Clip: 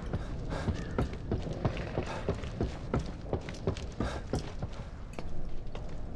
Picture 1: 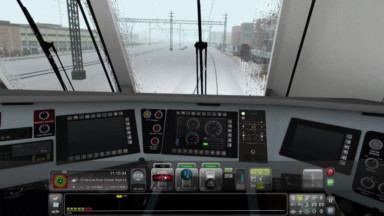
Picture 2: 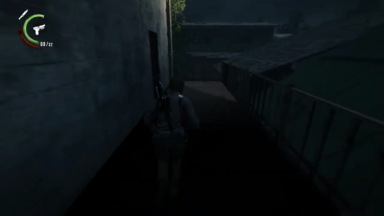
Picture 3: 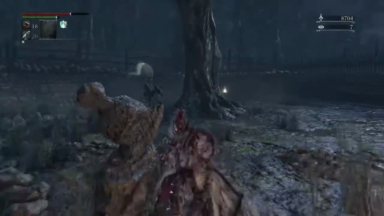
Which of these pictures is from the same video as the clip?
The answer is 2